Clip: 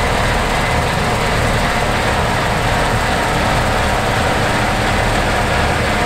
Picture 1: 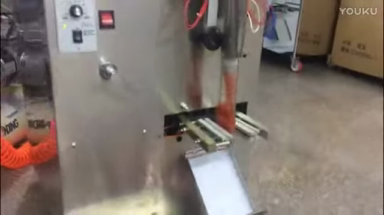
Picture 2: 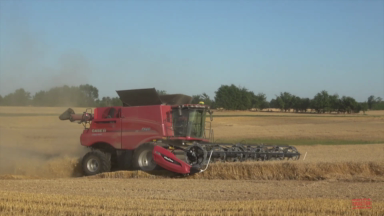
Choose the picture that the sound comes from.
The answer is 2